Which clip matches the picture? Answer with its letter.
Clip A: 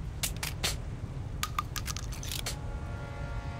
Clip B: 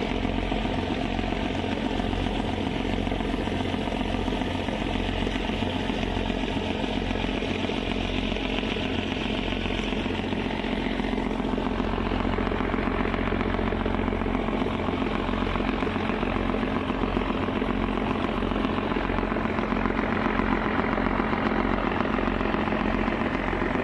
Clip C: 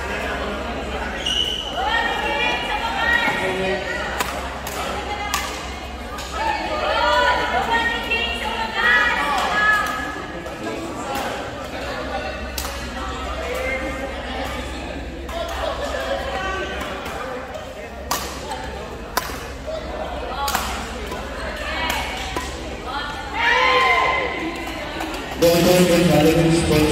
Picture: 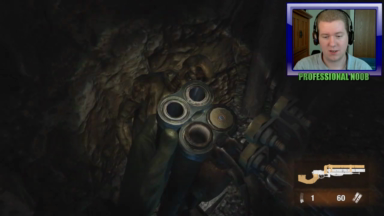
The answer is A